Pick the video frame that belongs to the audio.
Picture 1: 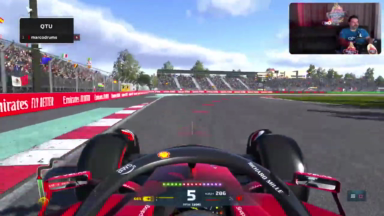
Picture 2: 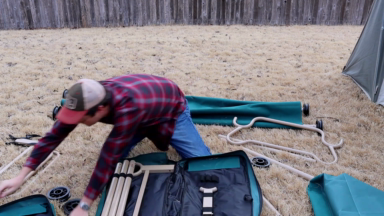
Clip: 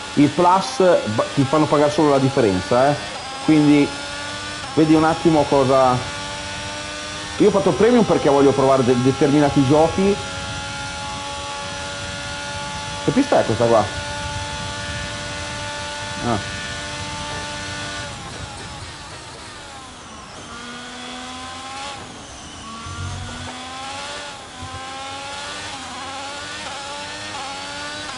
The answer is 1